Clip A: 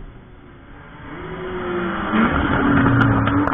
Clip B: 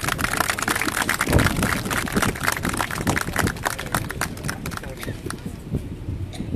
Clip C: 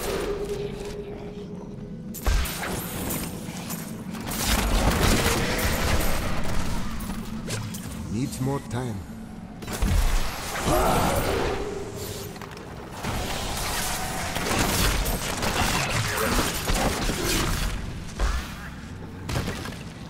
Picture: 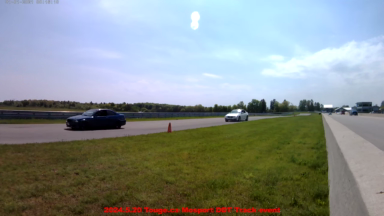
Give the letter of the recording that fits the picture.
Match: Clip A